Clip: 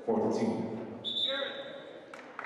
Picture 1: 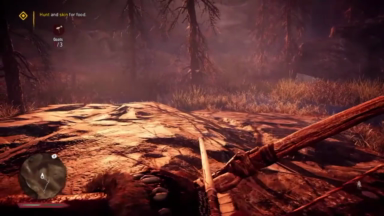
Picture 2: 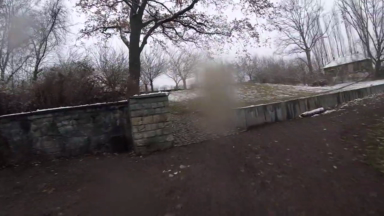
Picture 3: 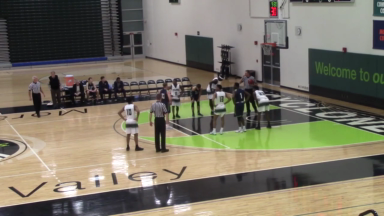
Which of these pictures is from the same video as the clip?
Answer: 3